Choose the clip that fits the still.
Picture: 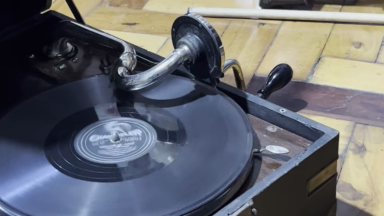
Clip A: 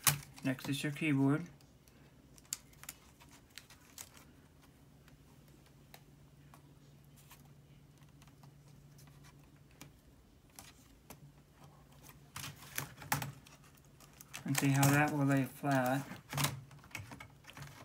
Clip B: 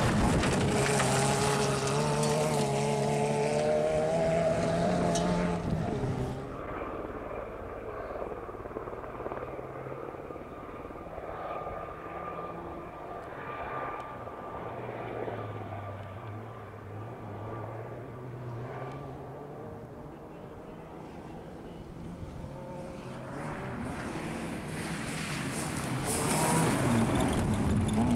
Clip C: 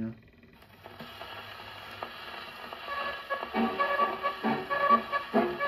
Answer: C